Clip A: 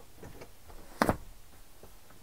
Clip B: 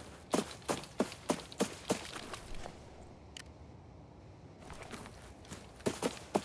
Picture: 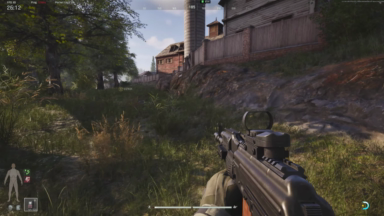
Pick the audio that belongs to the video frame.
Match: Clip B